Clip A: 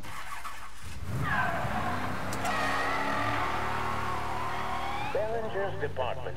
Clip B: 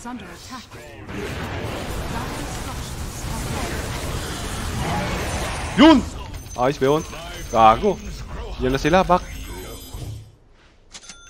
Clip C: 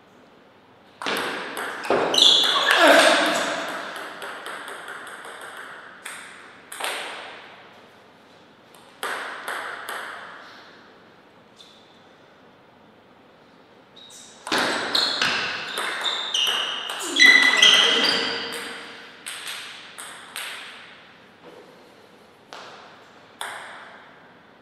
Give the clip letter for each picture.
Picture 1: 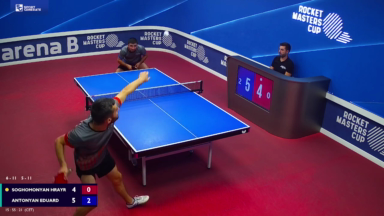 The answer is C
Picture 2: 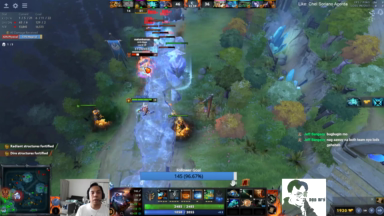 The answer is B